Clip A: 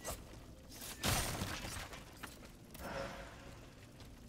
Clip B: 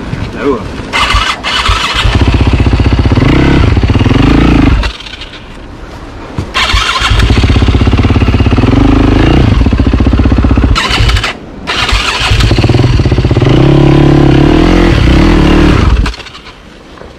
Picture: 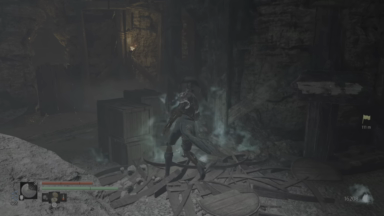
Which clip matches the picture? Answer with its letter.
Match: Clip A